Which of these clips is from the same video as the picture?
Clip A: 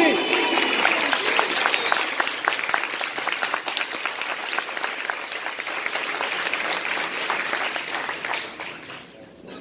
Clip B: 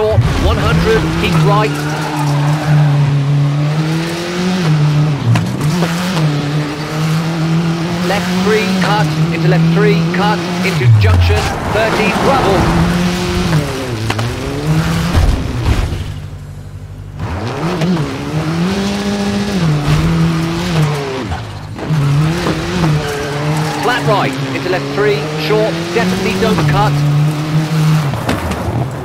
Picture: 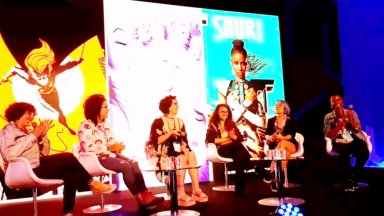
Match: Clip A